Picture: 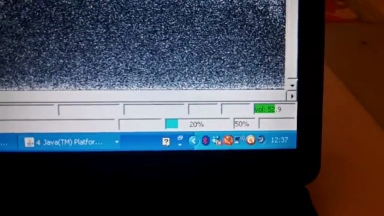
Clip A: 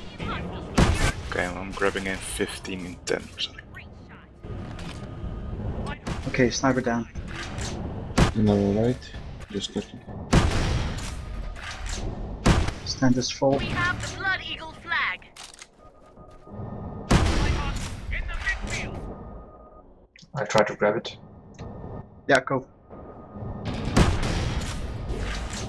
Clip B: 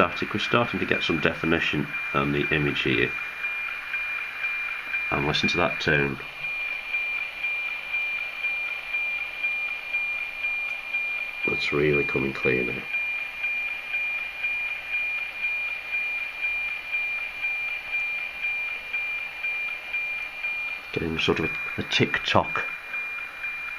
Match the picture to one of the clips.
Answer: B